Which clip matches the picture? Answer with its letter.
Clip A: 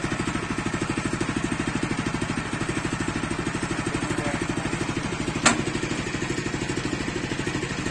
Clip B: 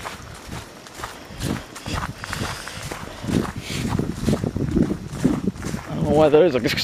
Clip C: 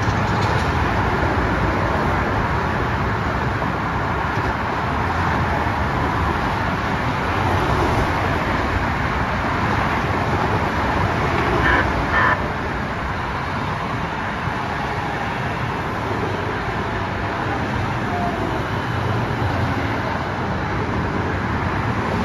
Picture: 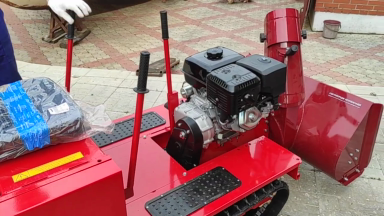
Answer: A